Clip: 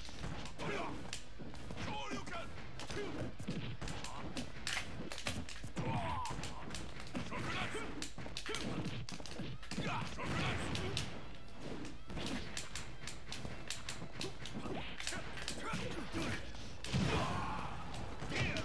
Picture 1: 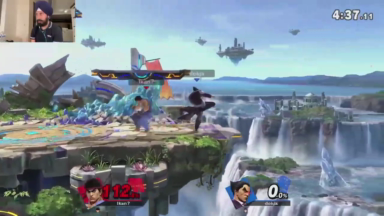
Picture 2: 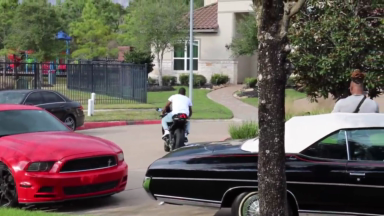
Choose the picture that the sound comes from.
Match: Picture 1